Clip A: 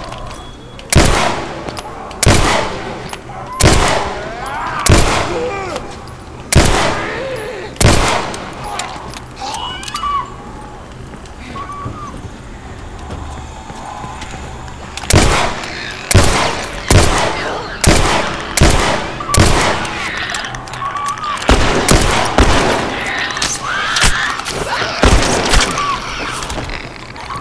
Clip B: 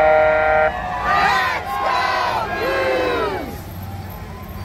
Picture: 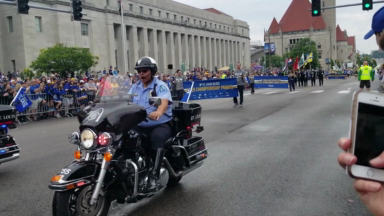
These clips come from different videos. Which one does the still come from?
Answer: B